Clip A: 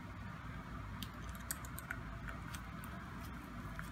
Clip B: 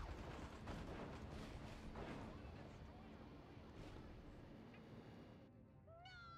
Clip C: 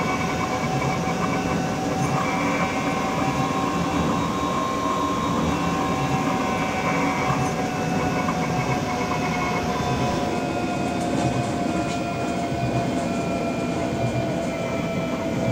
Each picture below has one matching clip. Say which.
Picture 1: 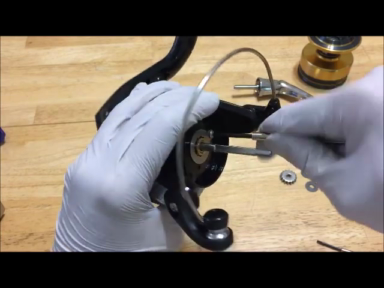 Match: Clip A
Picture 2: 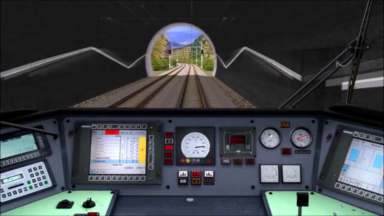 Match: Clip C